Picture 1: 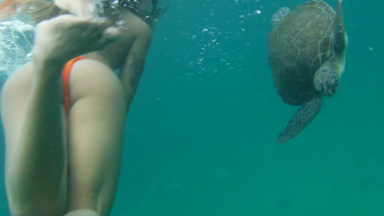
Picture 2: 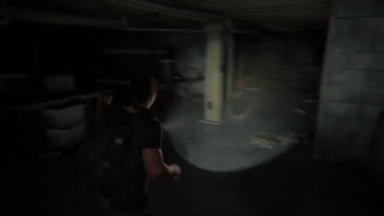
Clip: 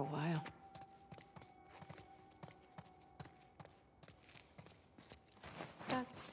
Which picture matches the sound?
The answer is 2